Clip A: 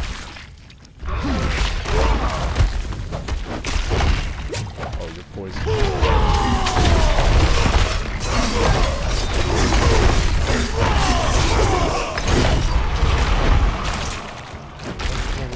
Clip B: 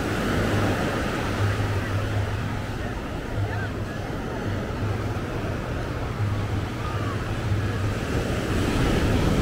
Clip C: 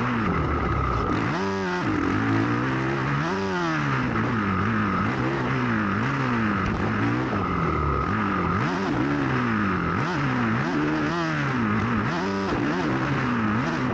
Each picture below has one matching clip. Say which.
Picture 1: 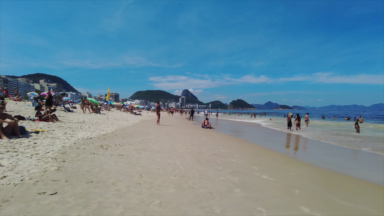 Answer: B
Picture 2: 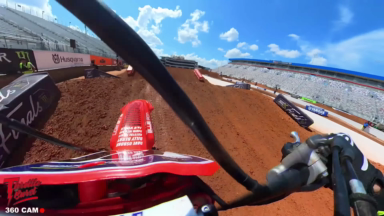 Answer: C